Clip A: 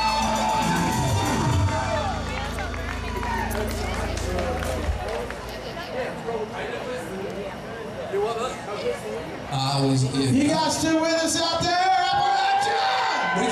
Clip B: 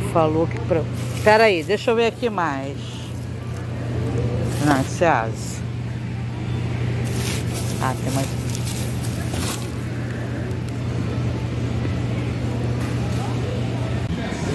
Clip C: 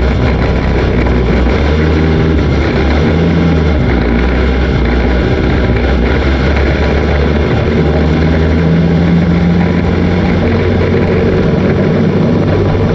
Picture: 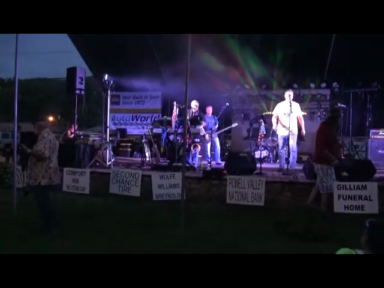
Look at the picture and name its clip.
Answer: A